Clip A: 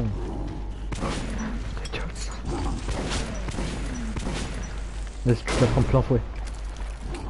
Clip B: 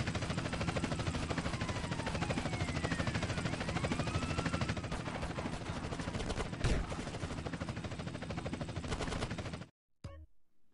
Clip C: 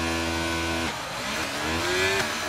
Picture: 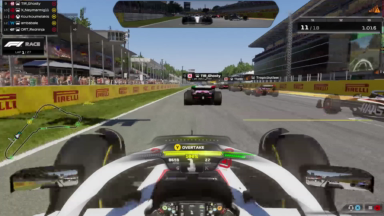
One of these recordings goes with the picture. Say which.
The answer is C